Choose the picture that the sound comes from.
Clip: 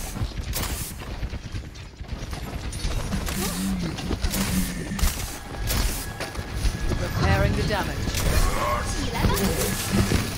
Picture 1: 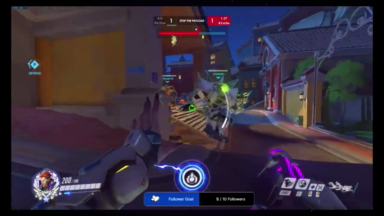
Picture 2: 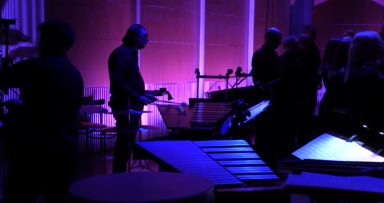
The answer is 1